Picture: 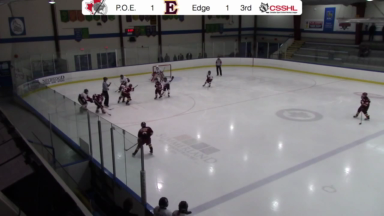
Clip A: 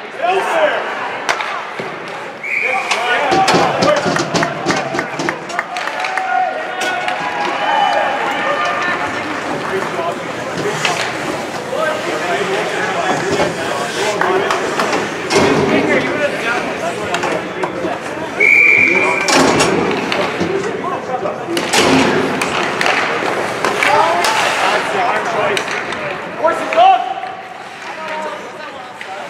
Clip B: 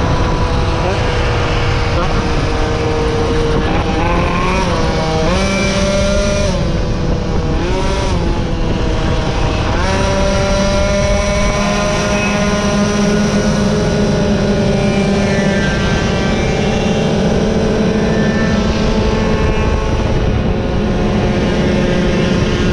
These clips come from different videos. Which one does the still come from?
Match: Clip A